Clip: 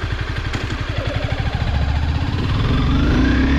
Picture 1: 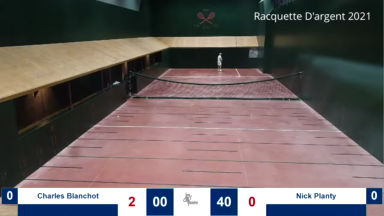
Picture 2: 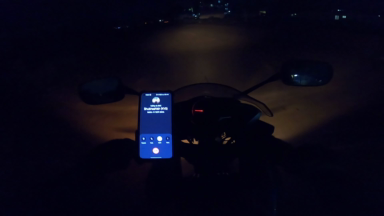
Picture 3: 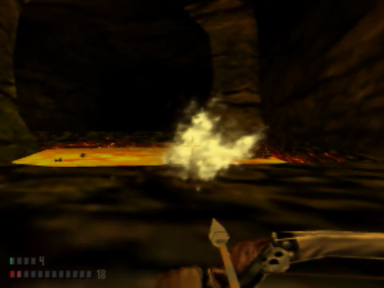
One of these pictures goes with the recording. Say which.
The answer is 2